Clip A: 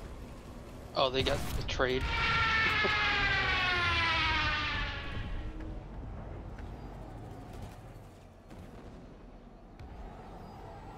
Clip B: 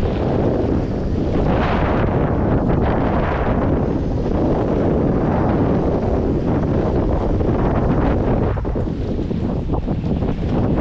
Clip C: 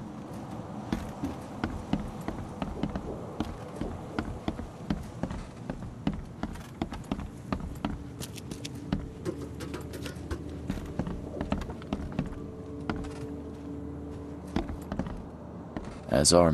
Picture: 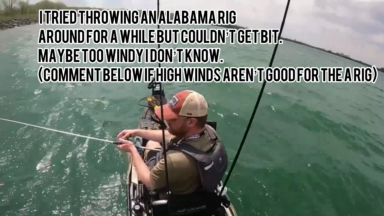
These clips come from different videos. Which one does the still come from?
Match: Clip B